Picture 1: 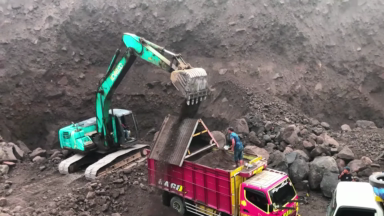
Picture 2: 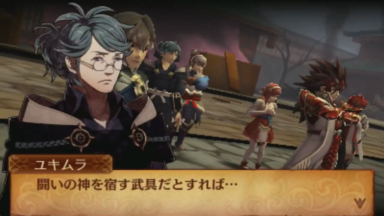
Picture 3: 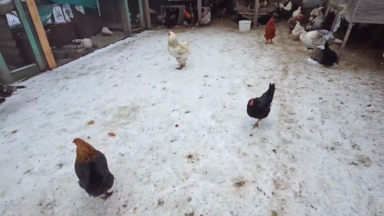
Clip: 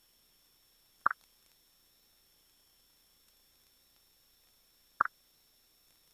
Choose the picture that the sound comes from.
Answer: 2